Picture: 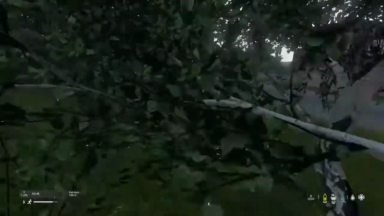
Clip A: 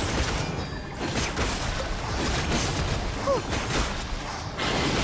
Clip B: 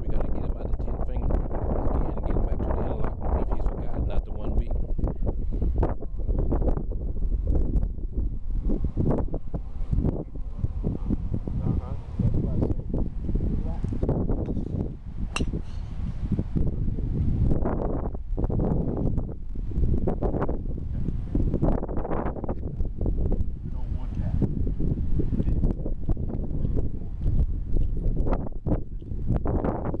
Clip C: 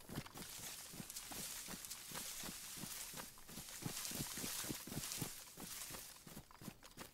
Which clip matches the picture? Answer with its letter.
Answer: C